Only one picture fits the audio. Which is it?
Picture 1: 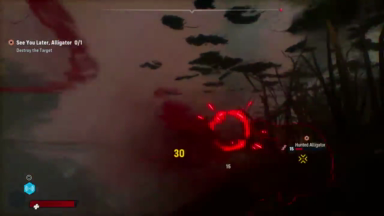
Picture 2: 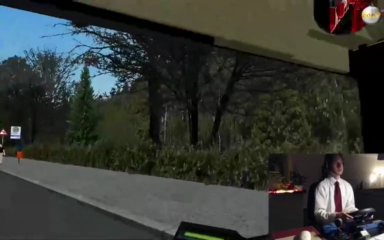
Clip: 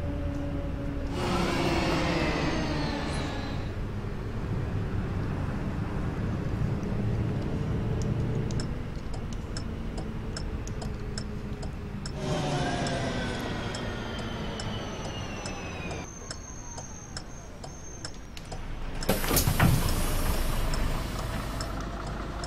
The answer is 2